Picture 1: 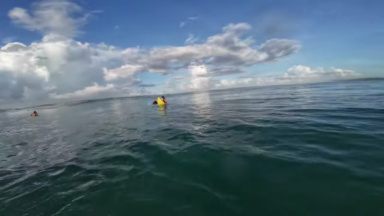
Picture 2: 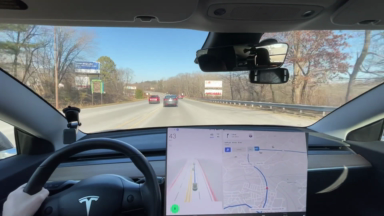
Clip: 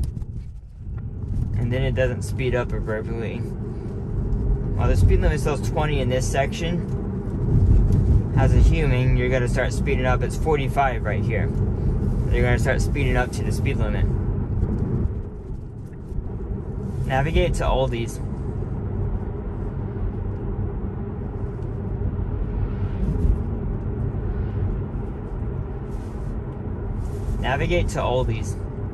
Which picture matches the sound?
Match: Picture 2